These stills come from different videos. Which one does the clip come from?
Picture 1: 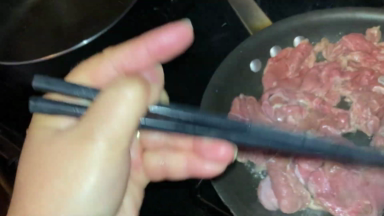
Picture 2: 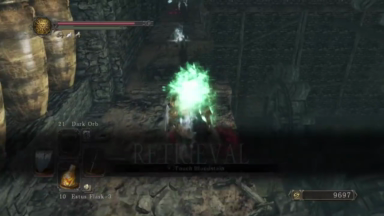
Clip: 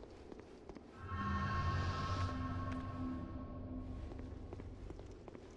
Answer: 2